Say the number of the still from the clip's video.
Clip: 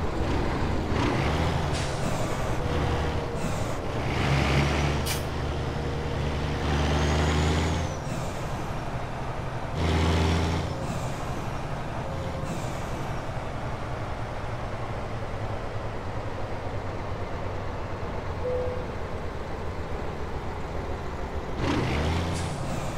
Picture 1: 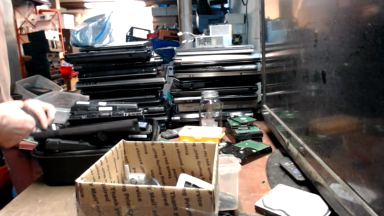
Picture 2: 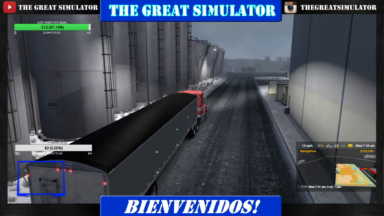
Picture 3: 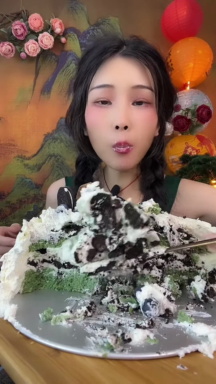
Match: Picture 2